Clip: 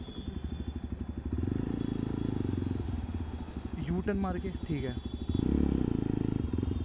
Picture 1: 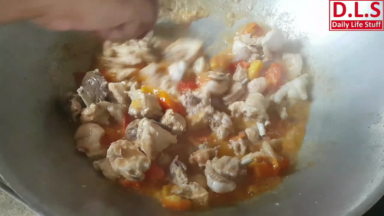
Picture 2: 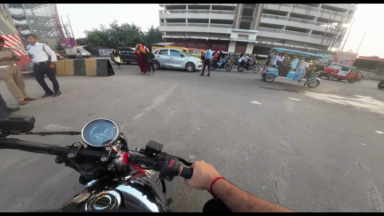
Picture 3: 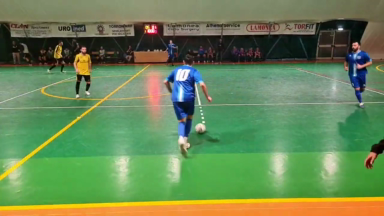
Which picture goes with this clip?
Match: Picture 2